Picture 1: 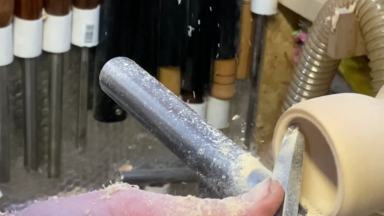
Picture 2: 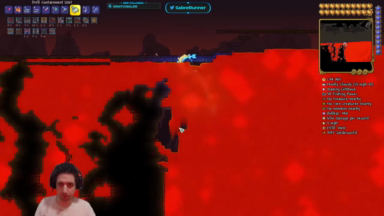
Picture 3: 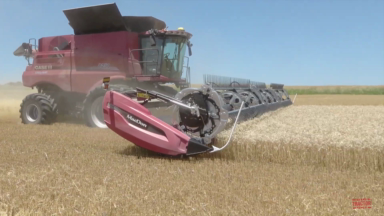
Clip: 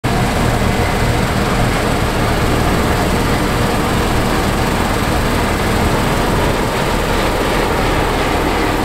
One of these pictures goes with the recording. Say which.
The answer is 3